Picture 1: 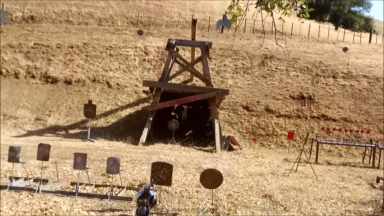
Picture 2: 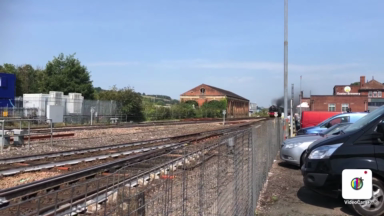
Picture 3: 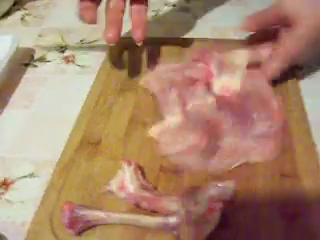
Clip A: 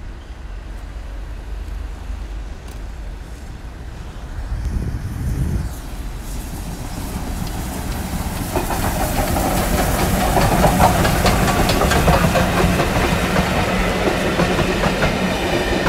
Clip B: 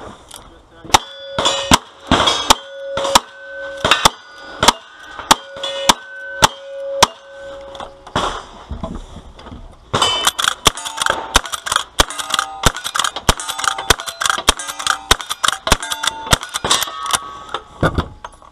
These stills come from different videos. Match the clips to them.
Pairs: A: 2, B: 1